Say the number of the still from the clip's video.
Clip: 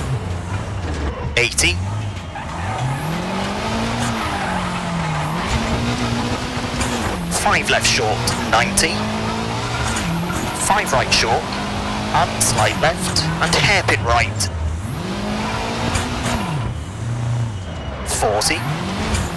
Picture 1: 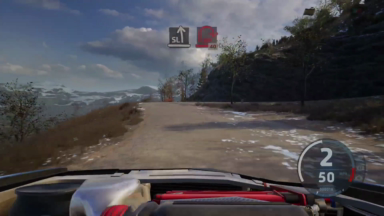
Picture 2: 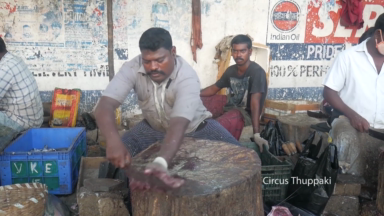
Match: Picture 1